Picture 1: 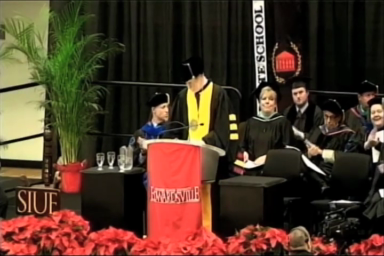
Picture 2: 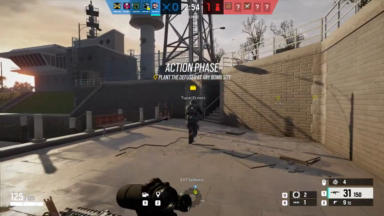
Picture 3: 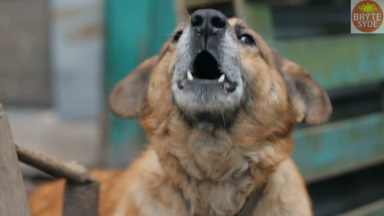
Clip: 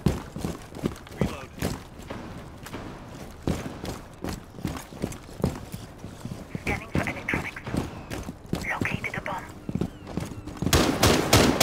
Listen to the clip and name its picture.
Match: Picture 2